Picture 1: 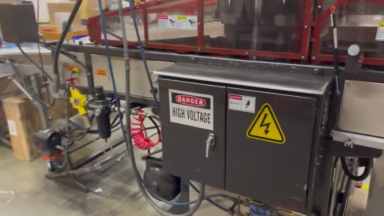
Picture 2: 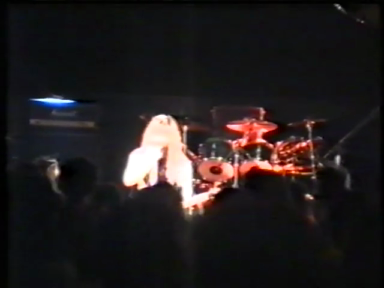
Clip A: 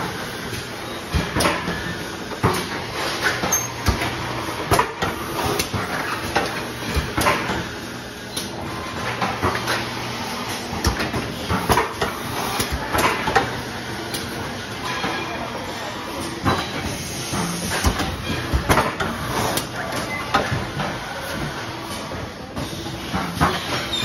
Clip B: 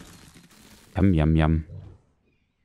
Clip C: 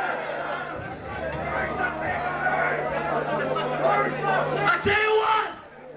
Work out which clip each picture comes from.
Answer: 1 A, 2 C